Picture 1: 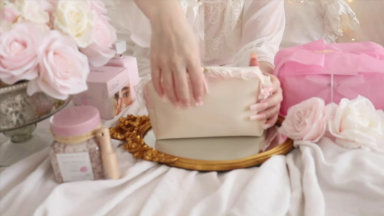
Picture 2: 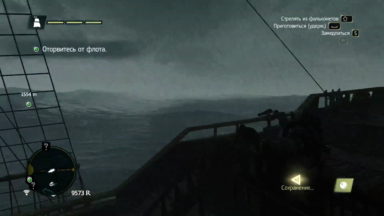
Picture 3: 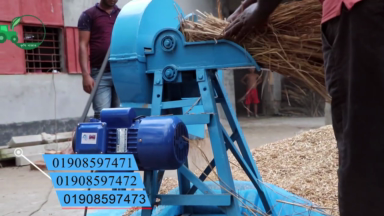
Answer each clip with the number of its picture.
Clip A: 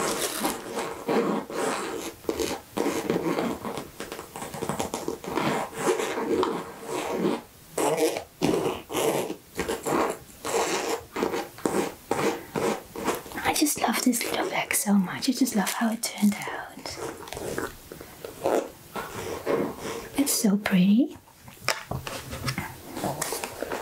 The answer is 1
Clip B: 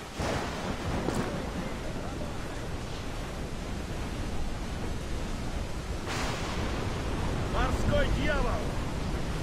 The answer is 2